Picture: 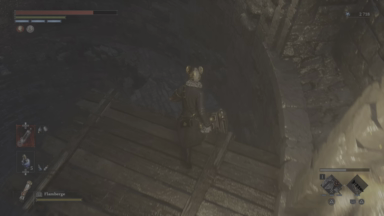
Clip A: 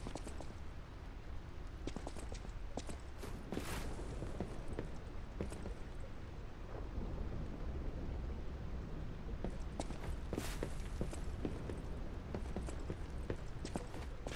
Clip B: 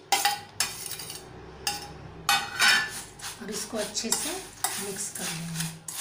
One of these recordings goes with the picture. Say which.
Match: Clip A